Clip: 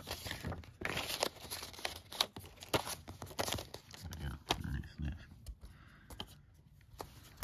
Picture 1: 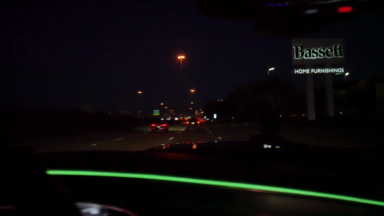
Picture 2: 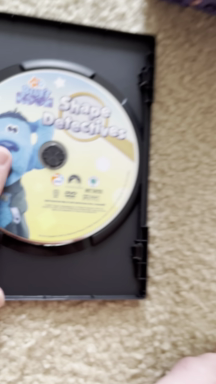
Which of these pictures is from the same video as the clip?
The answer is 2